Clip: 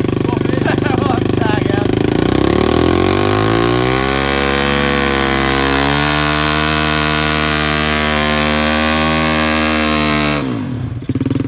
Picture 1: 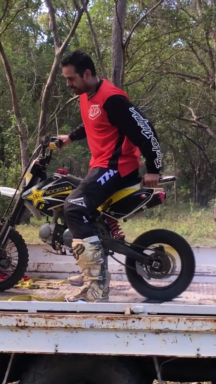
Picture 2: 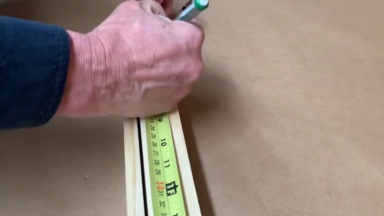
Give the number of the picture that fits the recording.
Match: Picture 1